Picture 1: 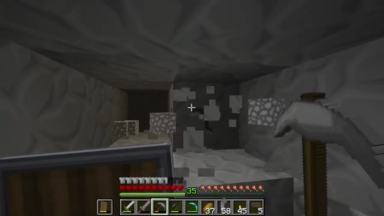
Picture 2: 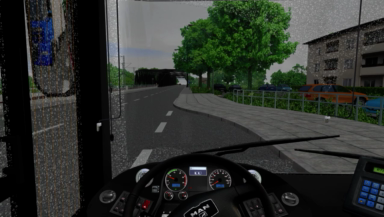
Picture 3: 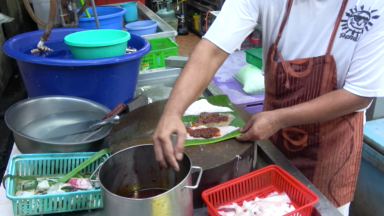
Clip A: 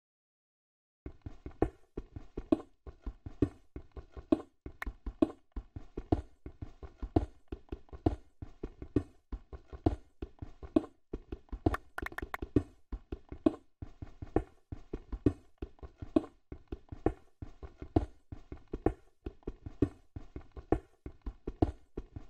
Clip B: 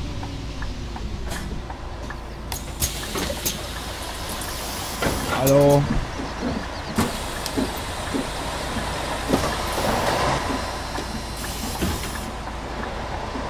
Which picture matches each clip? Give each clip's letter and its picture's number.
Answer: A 1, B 2